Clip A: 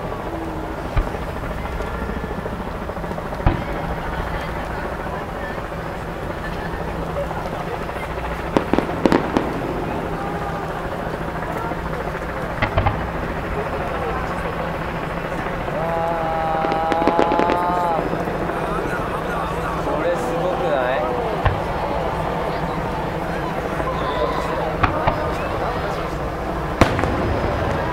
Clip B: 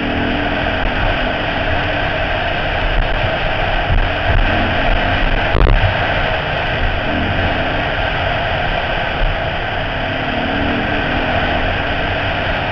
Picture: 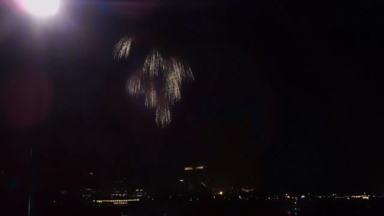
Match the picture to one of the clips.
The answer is A